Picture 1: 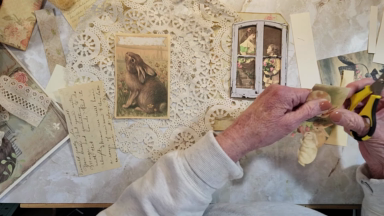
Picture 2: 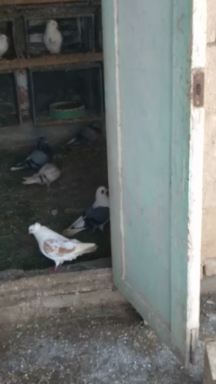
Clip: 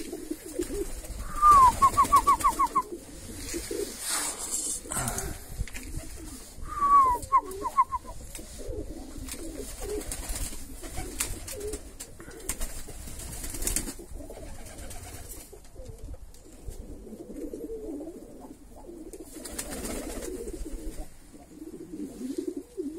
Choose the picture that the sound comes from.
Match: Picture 2